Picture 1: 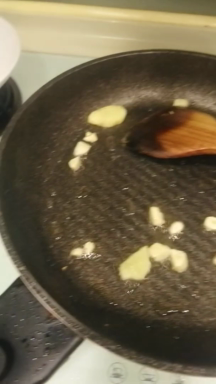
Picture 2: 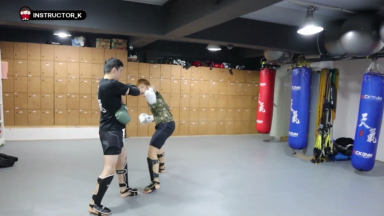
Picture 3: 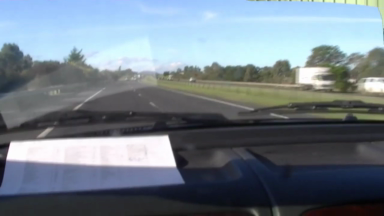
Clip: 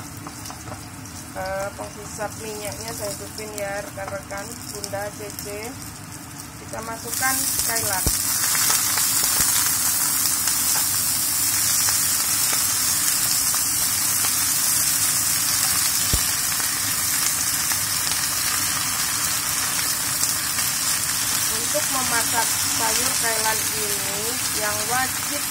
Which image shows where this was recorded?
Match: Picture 1